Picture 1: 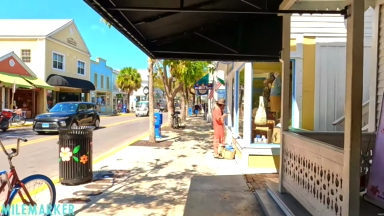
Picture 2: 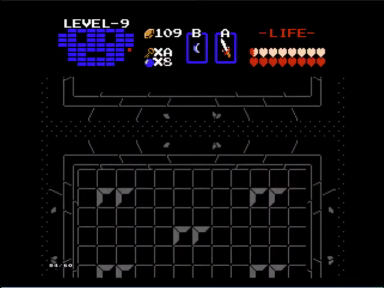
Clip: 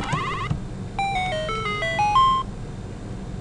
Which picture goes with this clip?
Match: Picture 2